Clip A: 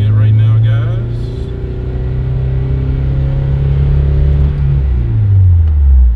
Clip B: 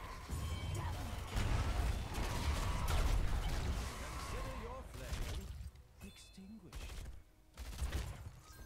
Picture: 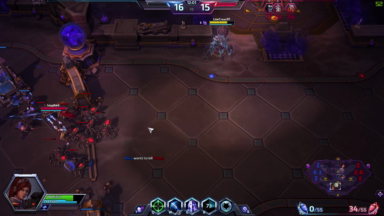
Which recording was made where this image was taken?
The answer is B